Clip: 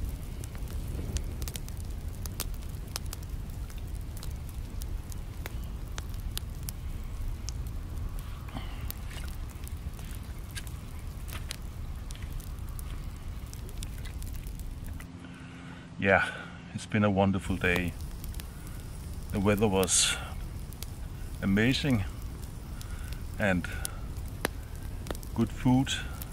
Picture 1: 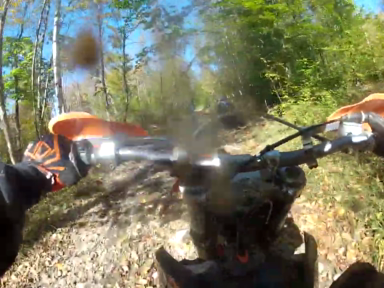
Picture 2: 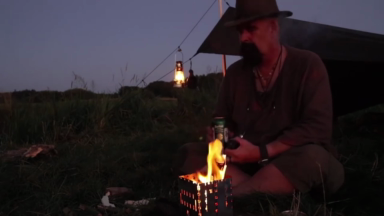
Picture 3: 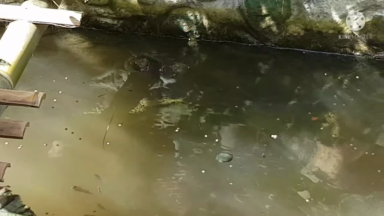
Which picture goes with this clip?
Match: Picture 2